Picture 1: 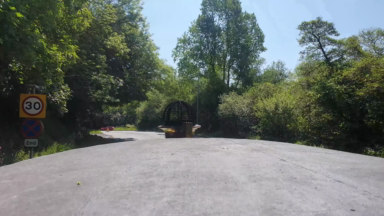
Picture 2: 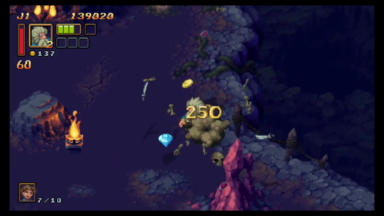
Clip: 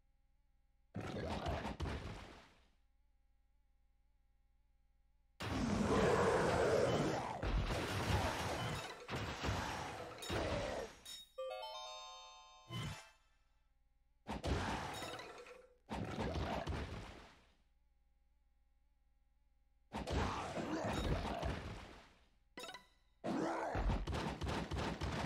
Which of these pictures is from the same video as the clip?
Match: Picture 2